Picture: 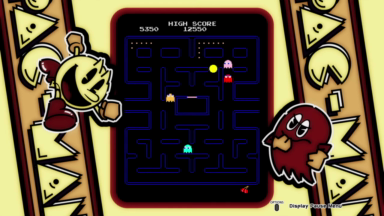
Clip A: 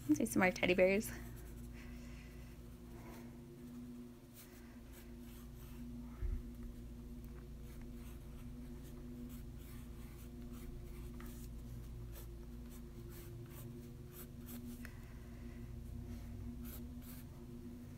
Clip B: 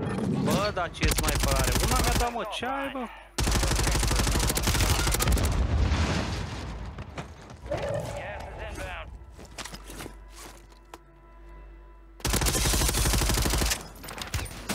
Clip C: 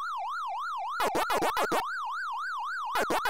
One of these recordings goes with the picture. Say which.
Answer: C